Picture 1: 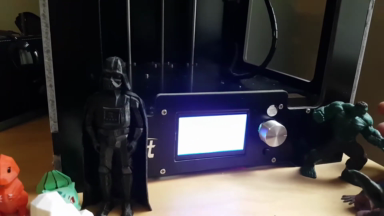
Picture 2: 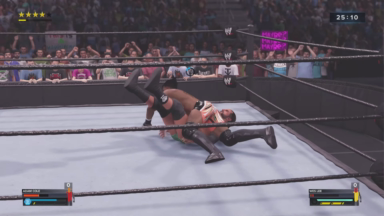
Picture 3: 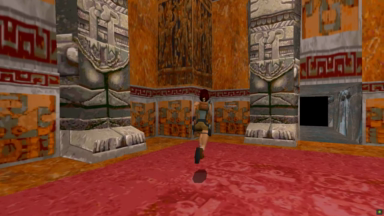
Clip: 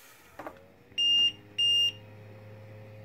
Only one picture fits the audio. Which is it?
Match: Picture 1